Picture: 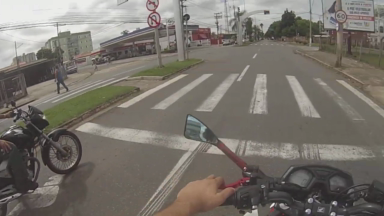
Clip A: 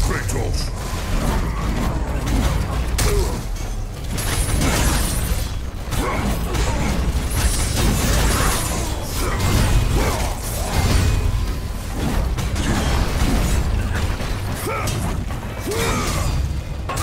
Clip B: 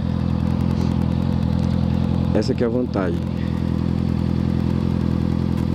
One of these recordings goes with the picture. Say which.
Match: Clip B